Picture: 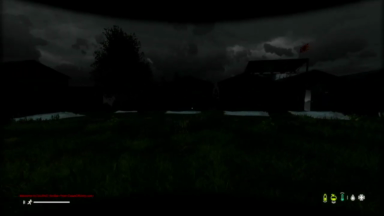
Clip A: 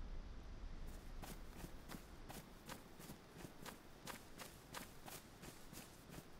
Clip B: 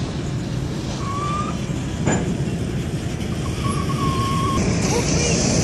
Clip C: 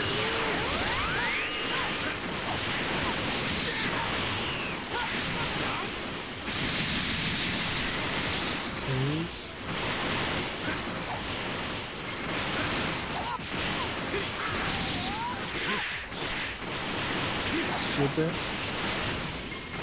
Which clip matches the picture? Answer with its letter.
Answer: A